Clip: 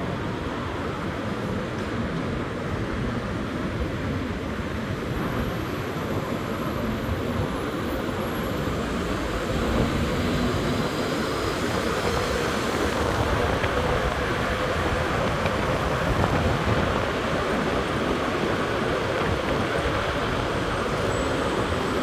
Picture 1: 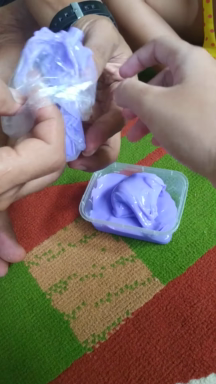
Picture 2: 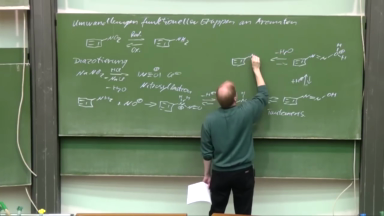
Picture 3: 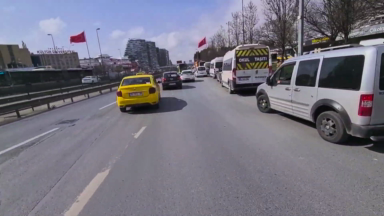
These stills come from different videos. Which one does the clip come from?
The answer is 3